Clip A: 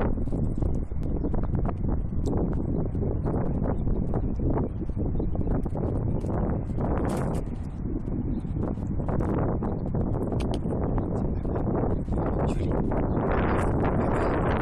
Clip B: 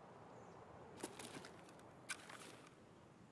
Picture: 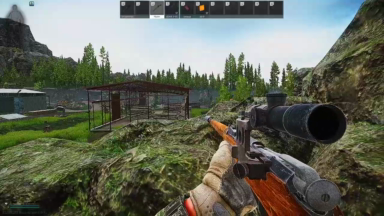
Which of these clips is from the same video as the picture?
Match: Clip B